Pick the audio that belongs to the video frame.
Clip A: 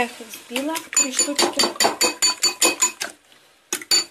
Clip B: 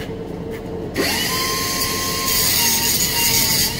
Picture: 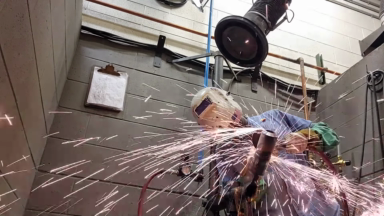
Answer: B